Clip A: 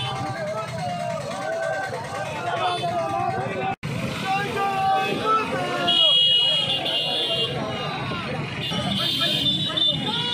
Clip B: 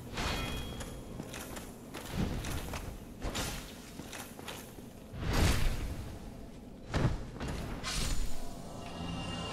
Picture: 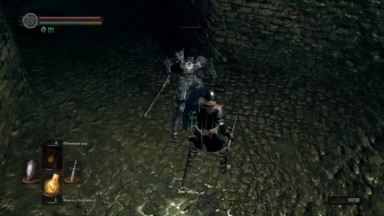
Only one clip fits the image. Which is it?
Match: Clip B